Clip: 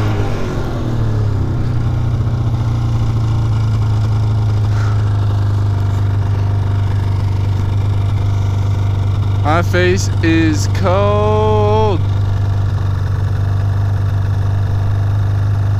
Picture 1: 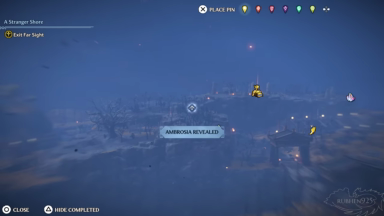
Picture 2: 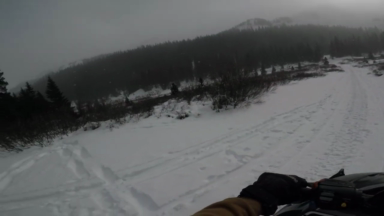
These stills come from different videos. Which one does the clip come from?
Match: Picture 2